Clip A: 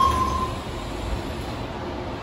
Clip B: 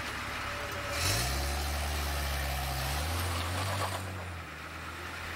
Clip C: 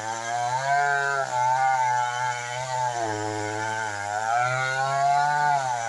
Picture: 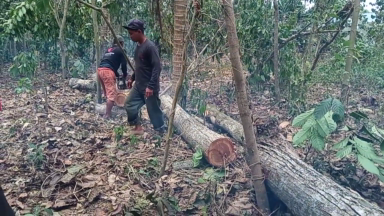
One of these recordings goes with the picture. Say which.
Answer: C